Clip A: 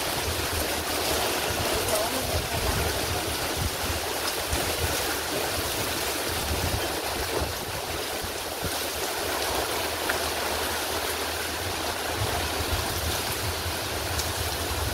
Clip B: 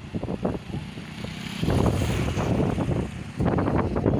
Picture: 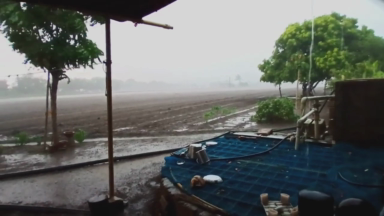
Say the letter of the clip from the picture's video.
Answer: A